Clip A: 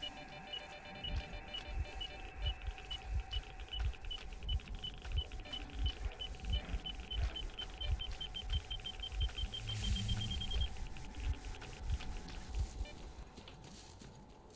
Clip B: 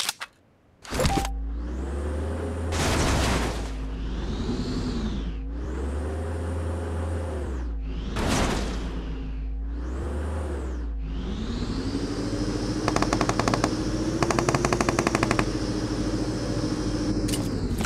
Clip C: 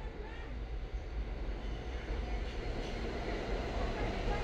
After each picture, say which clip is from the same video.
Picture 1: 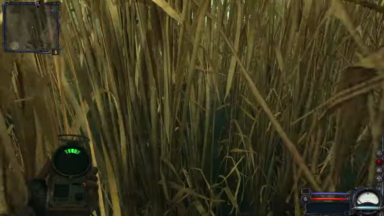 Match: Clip A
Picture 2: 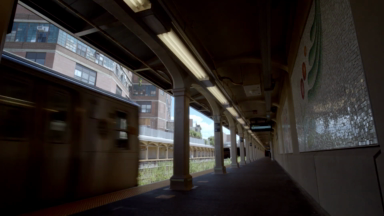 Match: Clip C